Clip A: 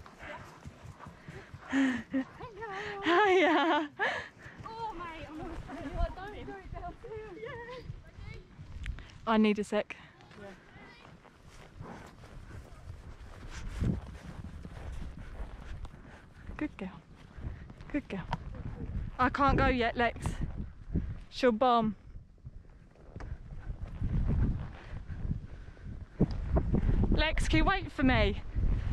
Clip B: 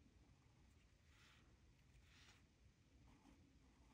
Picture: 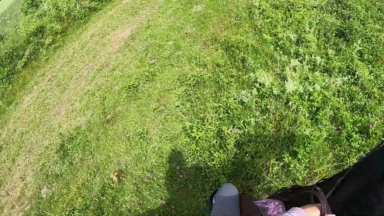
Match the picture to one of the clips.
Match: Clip A